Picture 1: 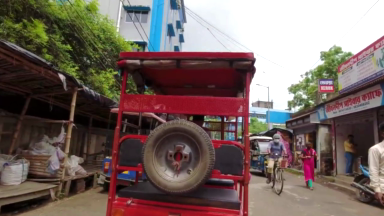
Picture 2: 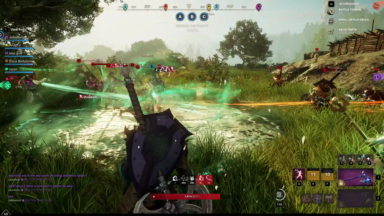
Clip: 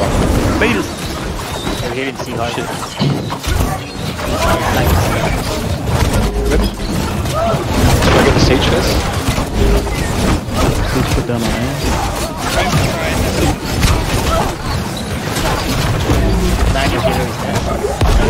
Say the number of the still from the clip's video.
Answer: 2